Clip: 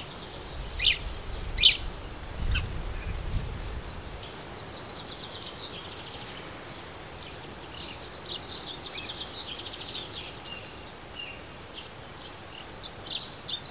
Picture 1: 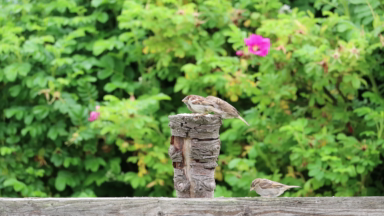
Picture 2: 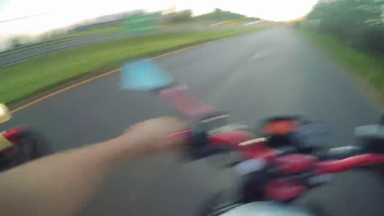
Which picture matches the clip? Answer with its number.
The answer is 1